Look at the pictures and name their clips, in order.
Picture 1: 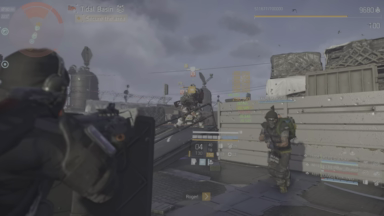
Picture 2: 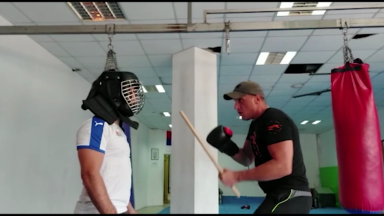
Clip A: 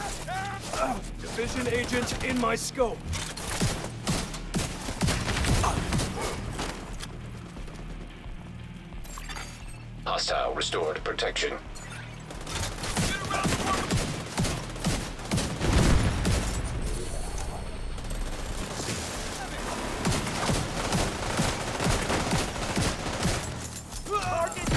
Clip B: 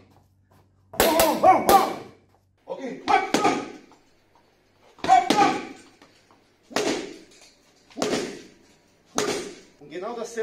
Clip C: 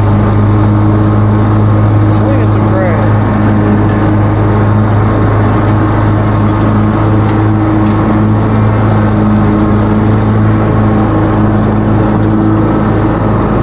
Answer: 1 A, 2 B